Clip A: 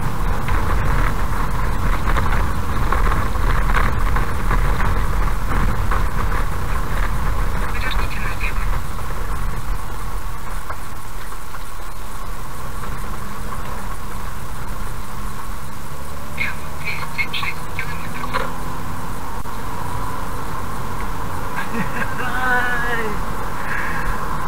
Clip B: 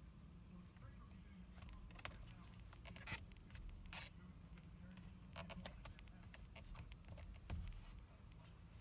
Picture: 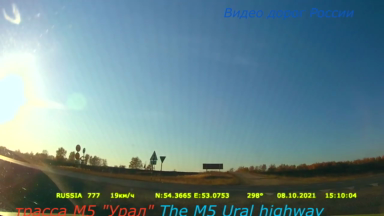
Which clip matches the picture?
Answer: A